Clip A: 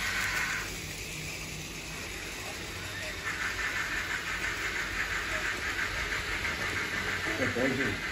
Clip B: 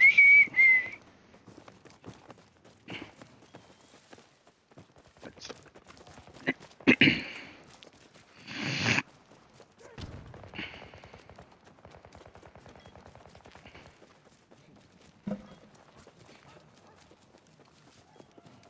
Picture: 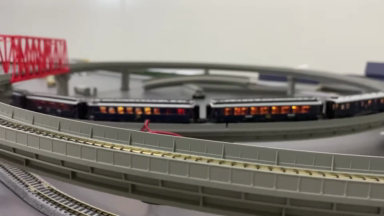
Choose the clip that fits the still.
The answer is A